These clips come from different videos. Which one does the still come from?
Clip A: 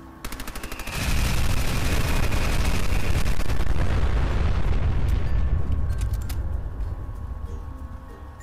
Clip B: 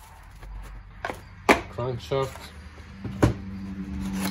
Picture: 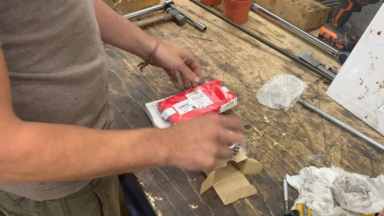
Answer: B